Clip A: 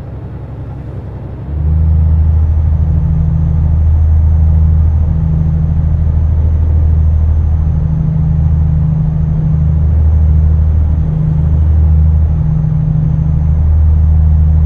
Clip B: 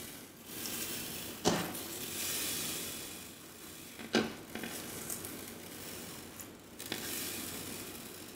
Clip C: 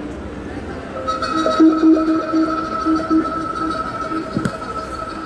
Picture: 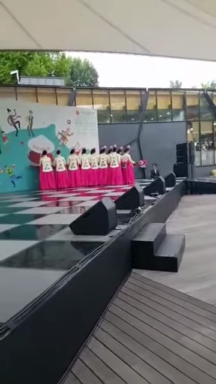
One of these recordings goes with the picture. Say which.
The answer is C